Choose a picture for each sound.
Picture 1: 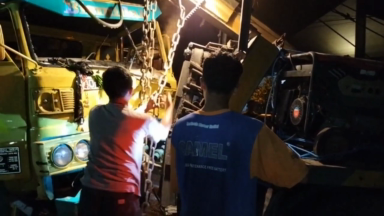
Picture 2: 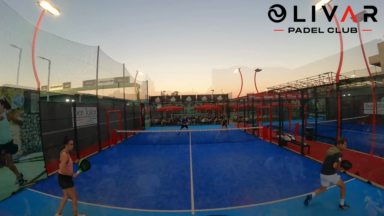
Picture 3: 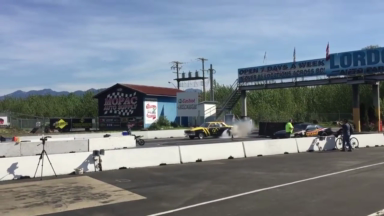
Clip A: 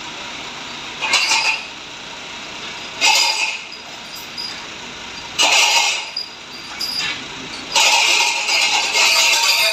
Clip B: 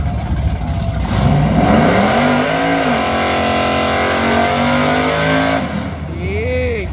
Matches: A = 1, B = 3